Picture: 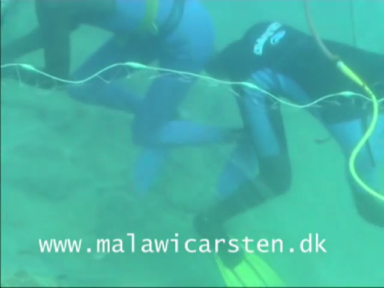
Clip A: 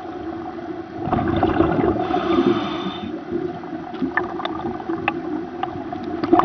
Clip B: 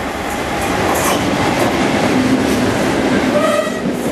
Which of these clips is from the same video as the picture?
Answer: A